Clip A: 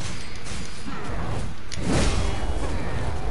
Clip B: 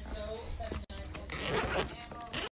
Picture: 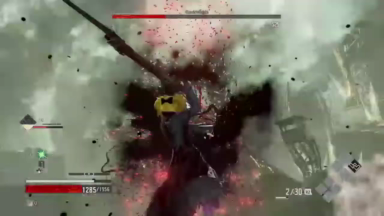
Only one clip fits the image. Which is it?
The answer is A